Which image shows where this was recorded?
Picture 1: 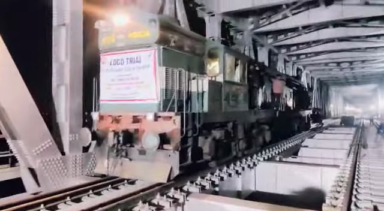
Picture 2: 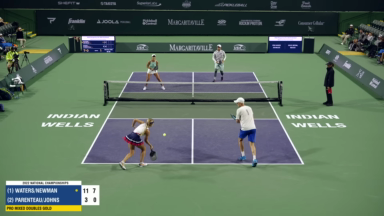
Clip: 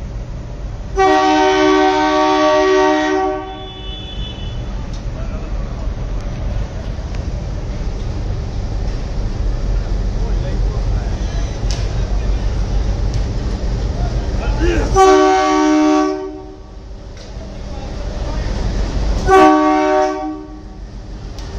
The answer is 1